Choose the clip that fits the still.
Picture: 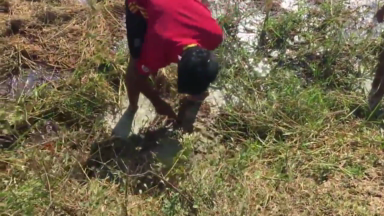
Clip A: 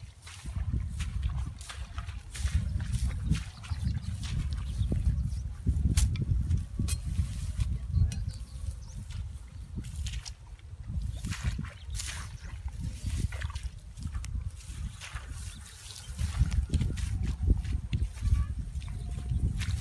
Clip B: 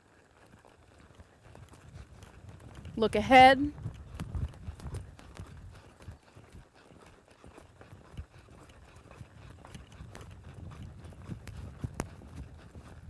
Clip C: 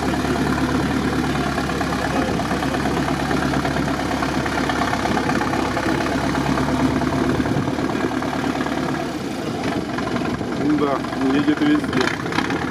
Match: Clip A